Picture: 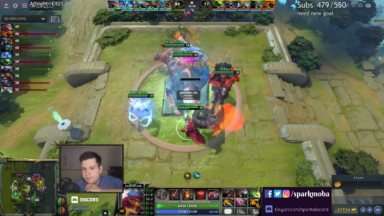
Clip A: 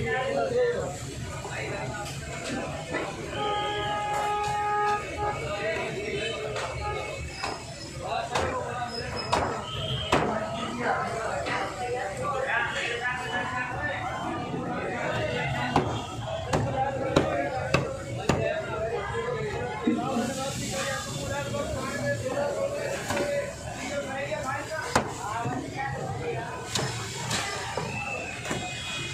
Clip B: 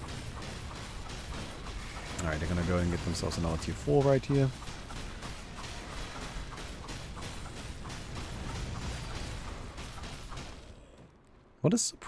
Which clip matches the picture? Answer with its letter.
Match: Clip B